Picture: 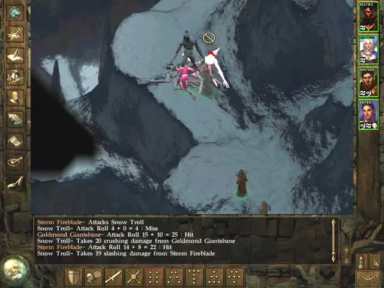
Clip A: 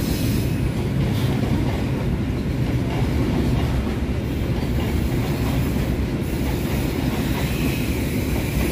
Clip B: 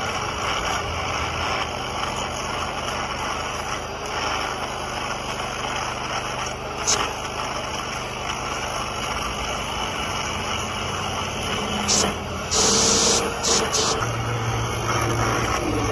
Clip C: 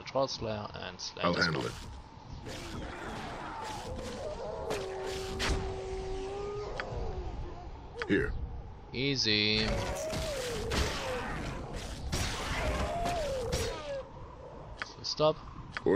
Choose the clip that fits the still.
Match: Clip C